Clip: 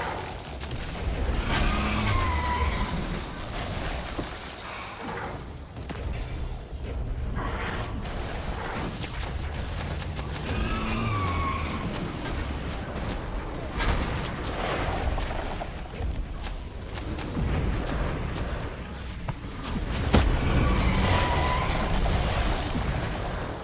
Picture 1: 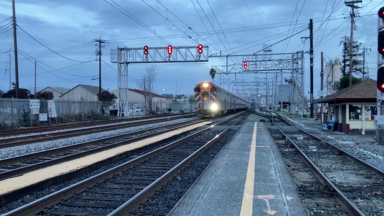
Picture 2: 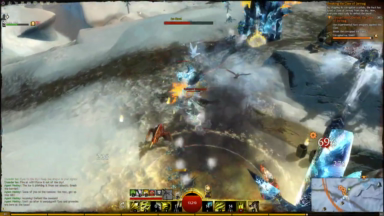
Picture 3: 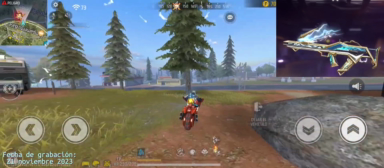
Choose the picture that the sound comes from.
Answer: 2